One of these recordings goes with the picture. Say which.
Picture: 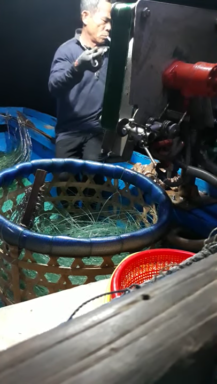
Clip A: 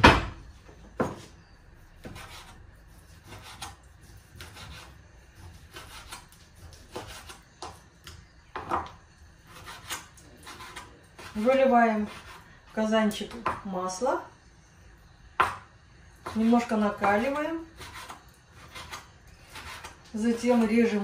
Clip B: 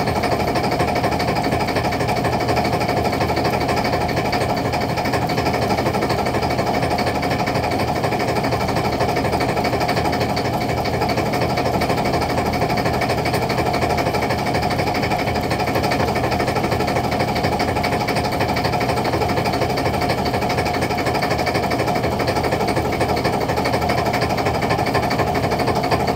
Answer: B